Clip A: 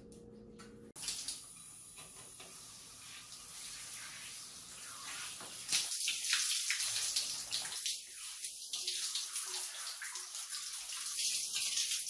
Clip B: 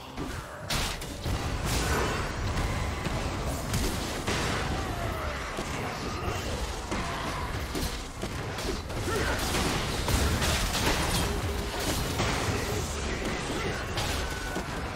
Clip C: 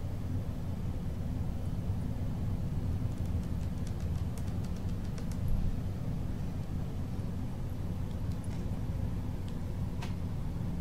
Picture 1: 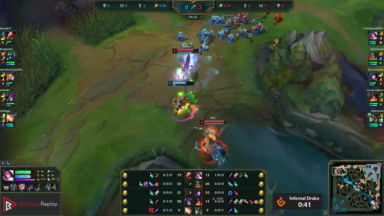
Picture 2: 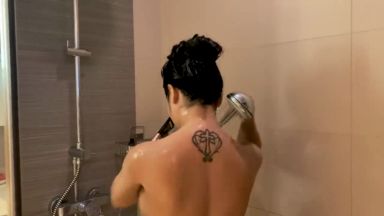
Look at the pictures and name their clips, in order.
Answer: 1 B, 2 A